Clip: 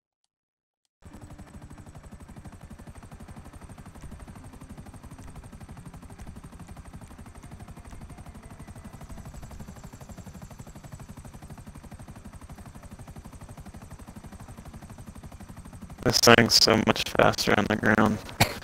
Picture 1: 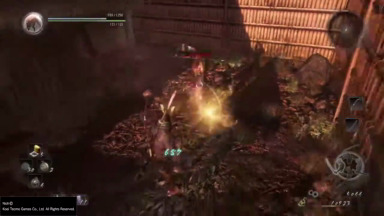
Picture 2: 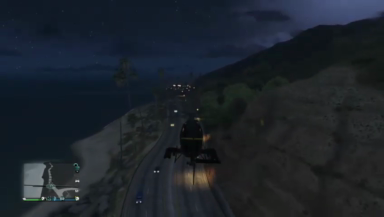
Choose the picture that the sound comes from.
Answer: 2